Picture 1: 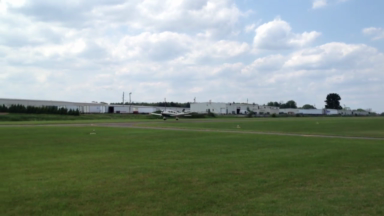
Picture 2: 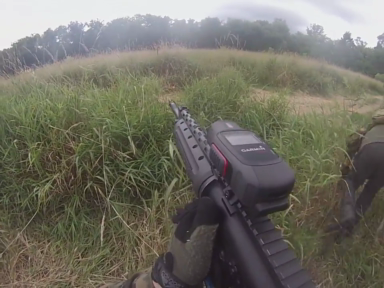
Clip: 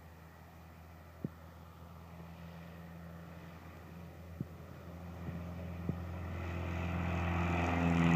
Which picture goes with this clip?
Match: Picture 1